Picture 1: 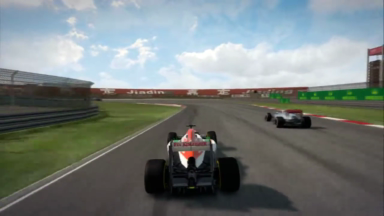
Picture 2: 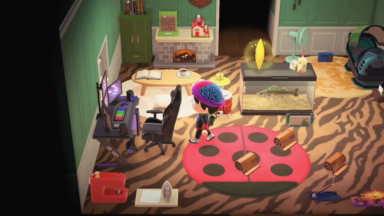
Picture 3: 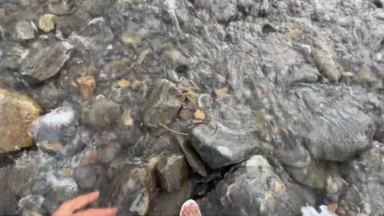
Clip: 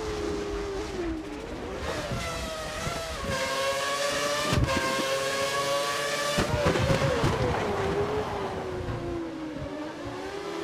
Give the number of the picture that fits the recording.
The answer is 1